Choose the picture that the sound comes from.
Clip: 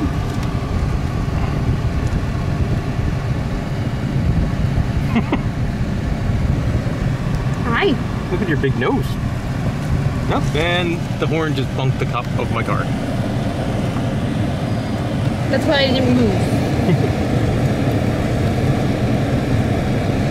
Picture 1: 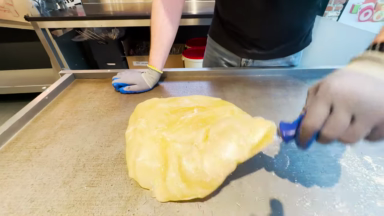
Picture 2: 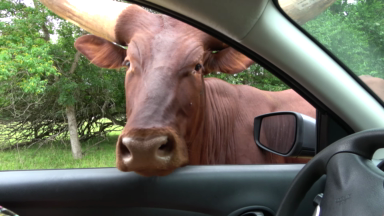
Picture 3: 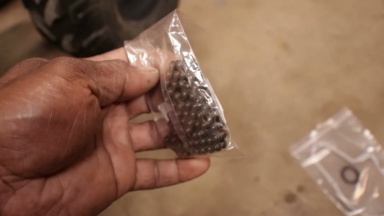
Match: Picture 2